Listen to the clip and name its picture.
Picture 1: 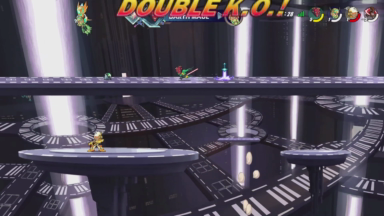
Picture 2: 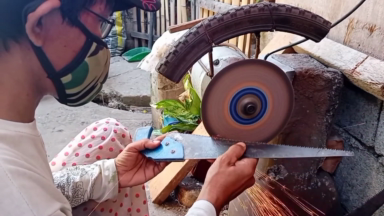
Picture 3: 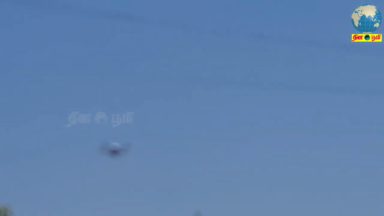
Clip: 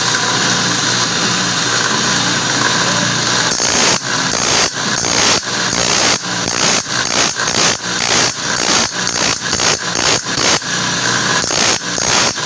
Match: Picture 2